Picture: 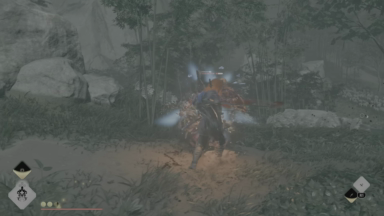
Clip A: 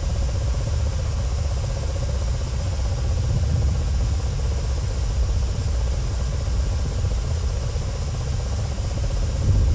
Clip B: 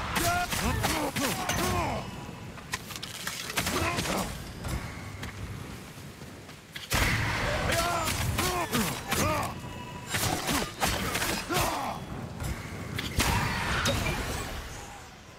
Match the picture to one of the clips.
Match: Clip B